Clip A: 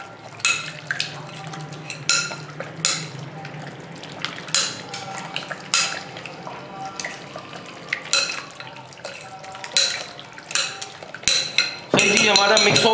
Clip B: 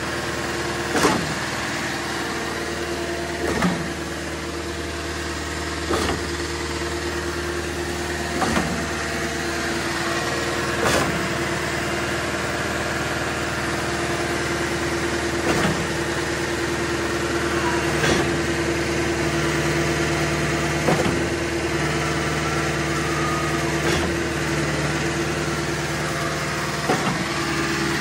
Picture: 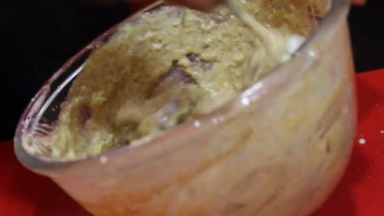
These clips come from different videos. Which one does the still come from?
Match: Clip A